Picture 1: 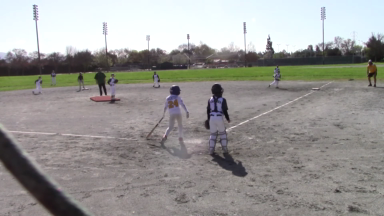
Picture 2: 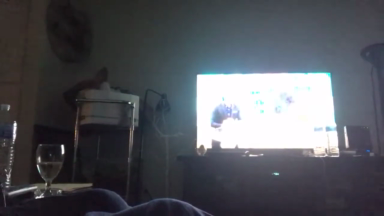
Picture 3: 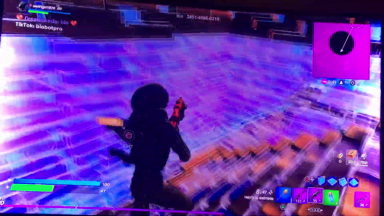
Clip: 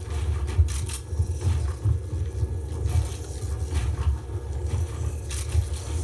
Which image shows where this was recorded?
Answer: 3